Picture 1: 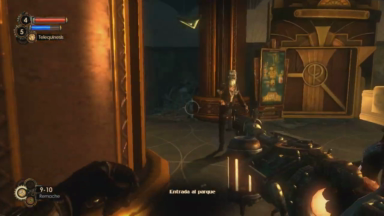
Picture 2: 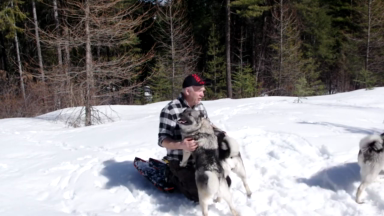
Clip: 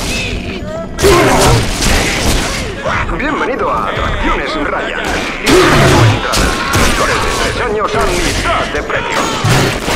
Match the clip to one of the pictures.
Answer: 1